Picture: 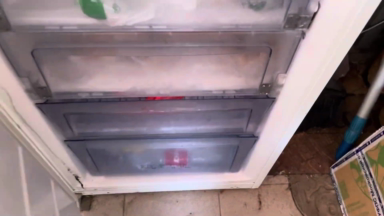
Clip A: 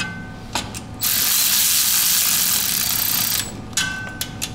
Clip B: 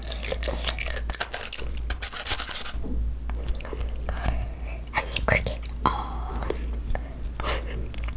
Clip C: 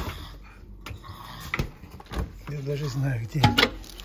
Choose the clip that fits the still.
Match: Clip C